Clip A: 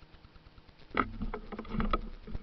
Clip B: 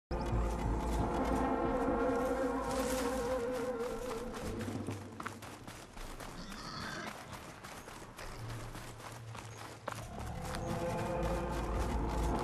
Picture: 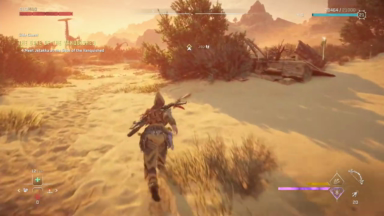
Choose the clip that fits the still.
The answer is B